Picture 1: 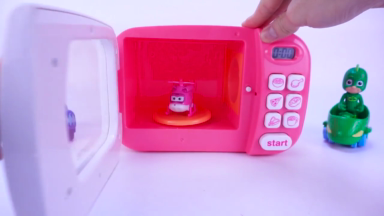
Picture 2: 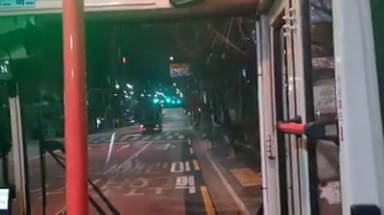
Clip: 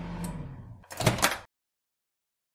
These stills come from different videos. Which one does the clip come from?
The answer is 1